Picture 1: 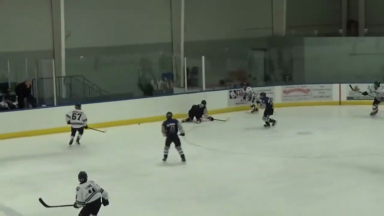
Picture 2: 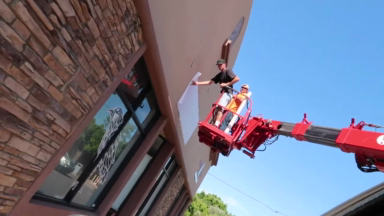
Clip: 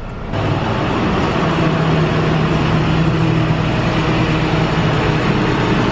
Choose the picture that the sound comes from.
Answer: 2